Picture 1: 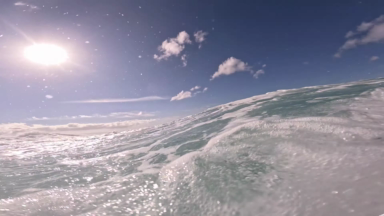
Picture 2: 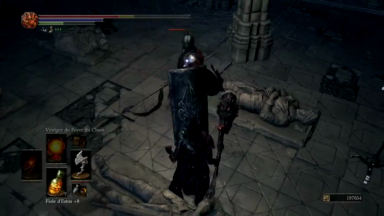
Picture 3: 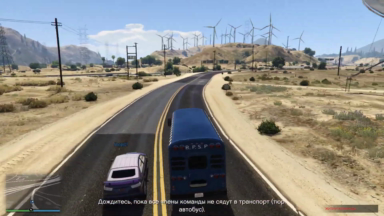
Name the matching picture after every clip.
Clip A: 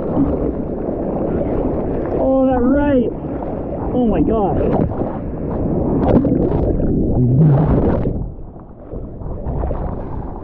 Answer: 1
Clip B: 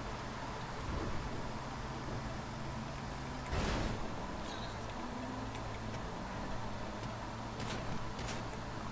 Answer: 3